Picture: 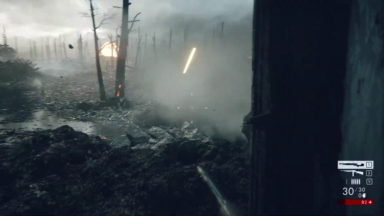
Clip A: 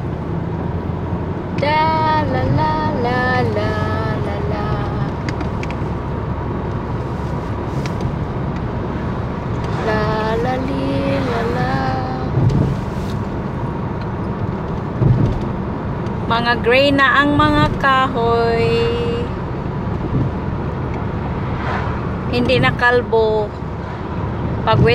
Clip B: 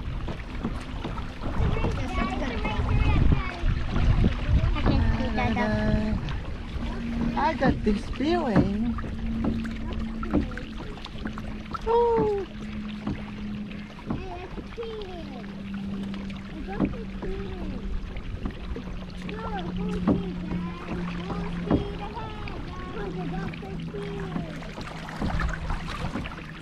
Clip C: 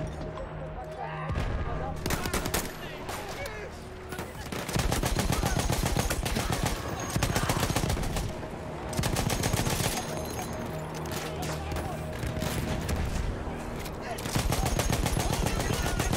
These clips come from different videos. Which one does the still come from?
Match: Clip C